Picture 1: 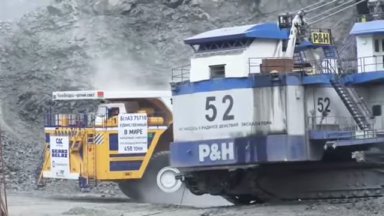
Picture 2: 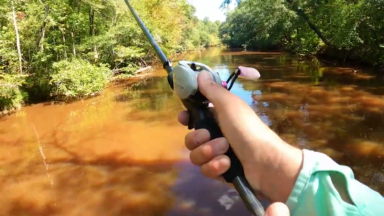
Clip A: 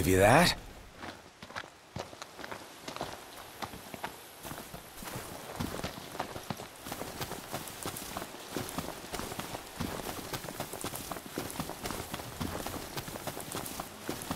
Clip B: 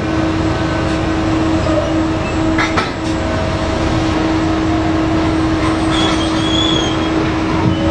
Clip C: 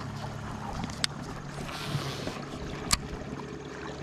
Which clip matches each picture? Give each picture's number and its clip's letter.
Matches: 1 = B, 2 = C